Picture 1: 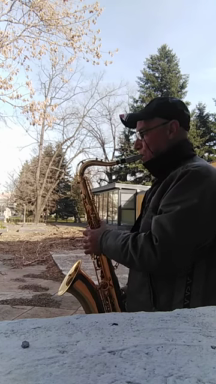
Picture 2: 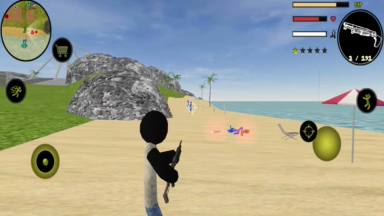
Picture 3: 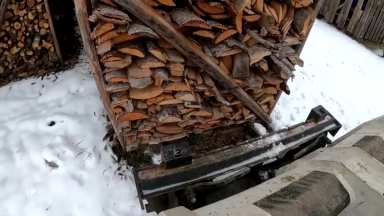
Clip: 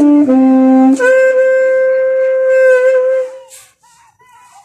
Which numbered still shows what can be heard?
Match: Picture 1